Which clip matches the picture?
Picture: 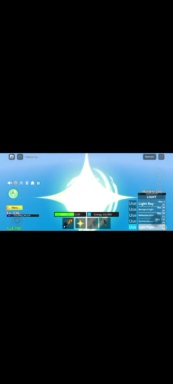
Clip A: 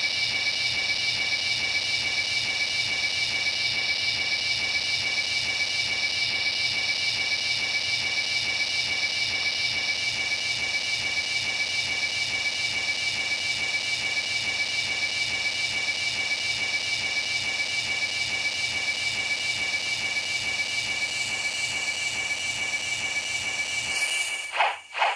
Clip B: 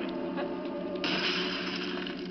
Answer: A